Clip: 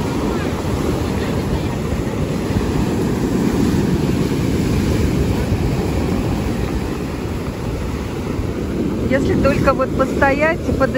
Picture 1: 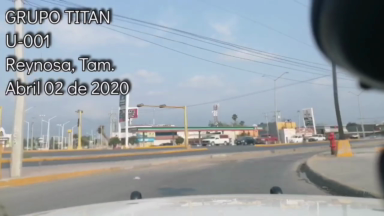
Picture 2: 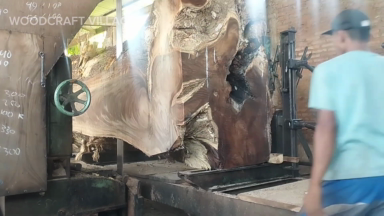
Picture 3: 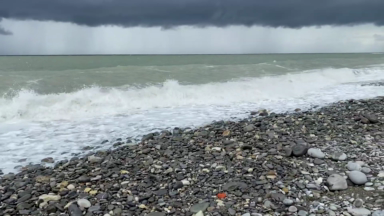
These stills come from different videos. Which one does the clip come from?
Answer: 3